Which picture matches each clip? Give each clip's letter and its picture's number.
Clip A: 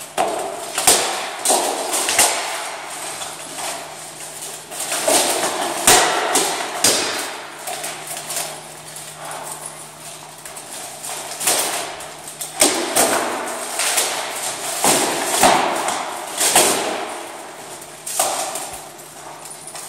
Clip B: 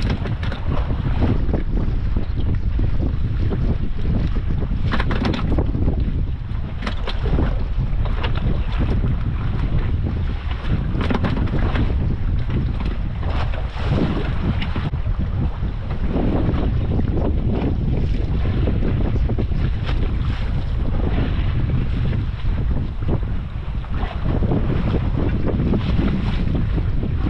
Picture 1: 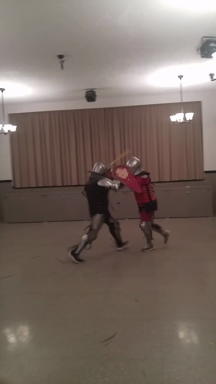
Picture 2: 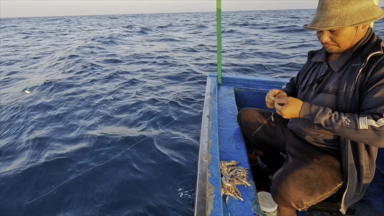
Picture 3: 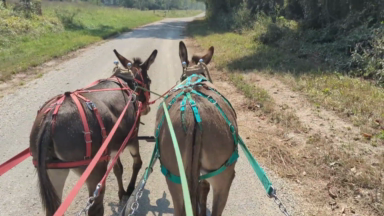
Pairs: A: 1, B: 2